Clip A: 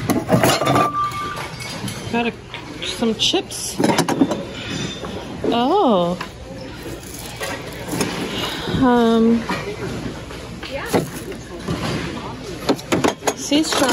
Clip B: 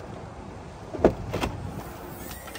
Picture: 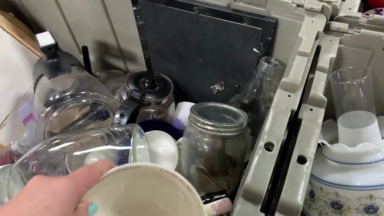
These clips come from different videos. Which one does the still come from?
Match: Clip A